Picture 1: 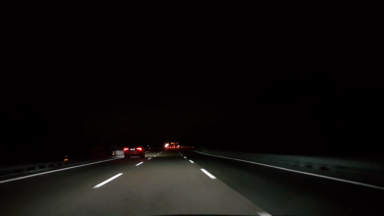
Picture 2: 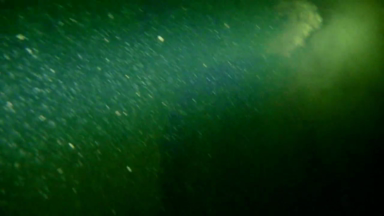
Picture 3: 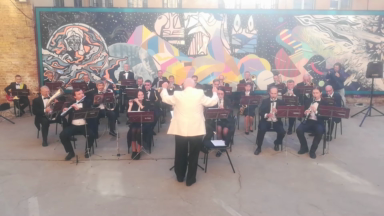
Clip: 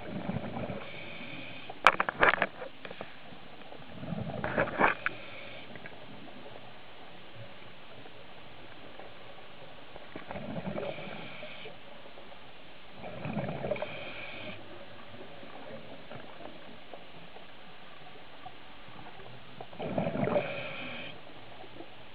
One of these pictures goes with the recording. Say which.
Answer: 2